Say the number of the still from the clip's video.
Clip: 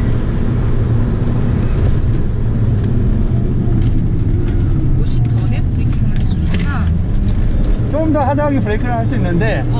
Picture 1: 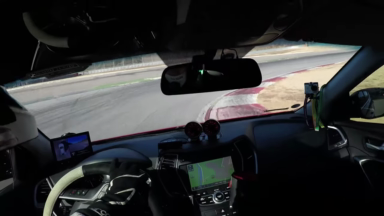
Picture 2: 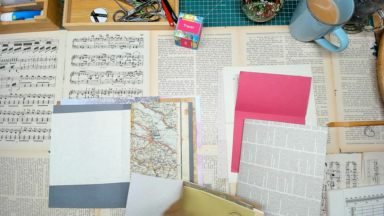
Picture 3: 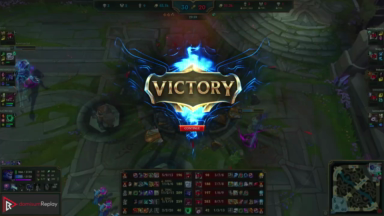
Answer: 1